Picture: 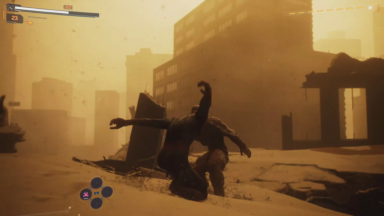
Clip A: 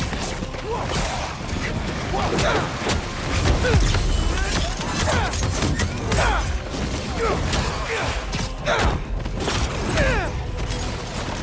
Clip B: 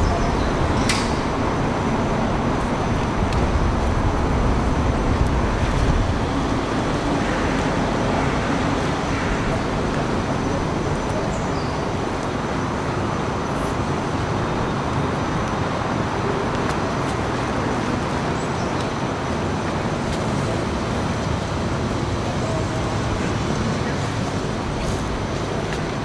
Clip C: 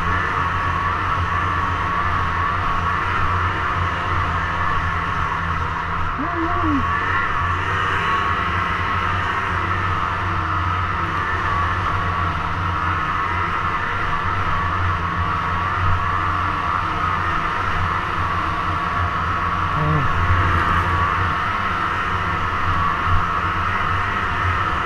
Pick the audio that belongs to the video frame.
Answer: A